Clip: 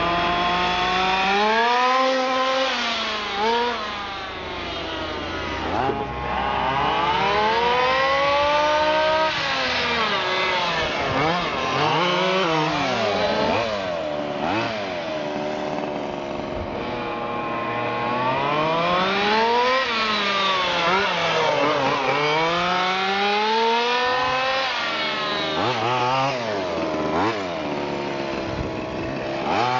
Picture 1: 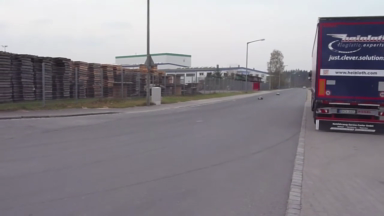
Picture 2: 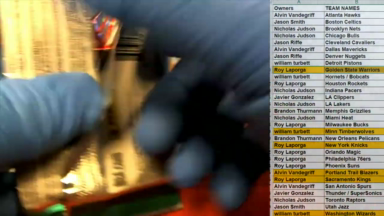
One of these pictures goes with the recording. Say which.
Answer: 1